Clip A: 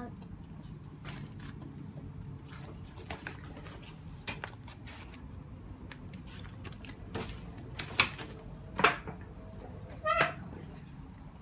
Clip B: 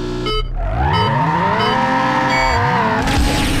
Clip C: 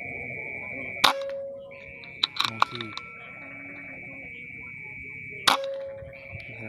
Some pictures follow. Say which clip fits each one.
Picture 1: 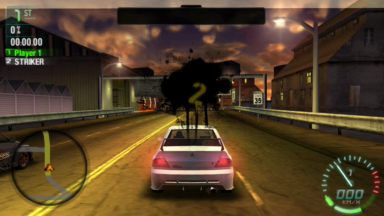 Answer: B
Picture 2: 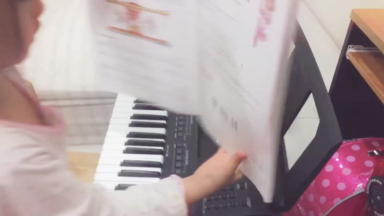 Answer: A